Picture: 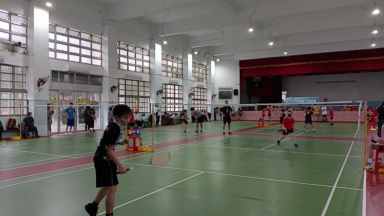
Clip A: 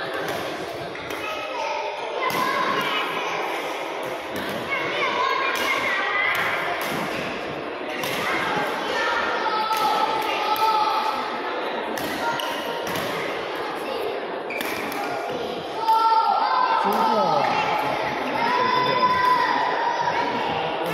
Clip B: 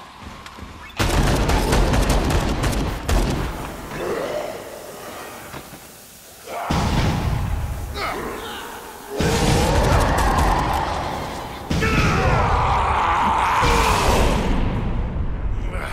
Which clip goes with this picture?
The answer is A